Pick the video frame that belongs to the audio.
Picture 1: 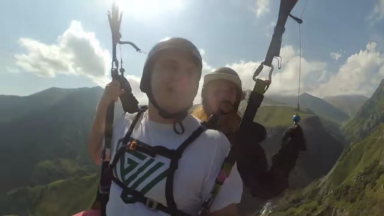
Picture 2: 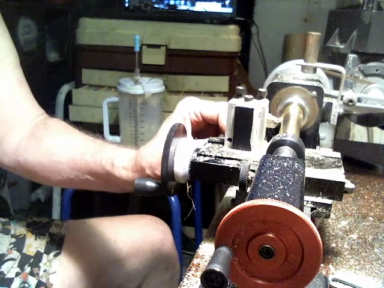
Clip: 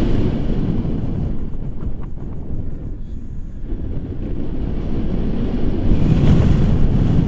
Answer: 1